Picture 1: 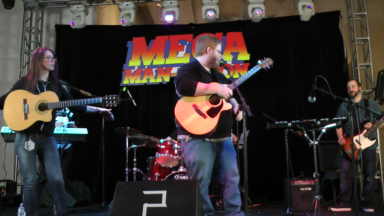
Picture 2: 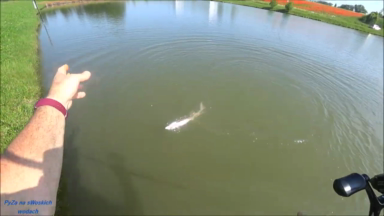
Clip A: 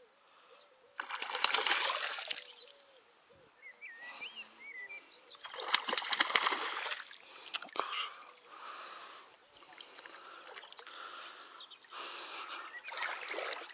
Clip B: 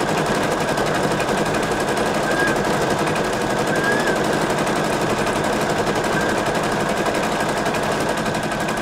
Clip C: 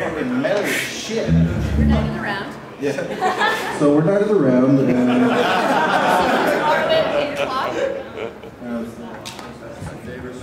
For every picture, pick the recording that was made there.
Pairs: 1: C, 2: A